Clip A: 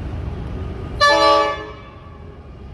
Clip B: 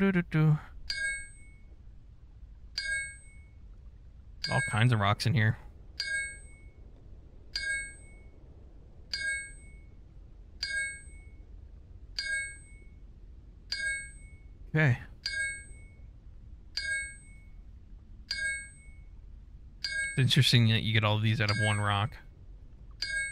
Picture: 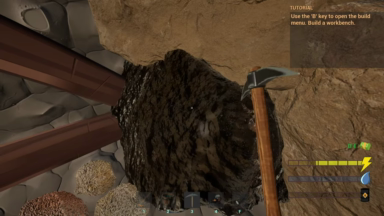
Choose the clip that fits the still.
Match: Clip B